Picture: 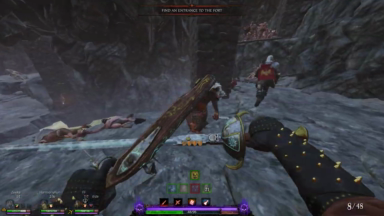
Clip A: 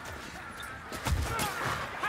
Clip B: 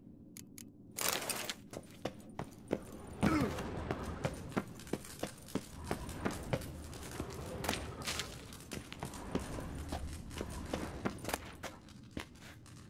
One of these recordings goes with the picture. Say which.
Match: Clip A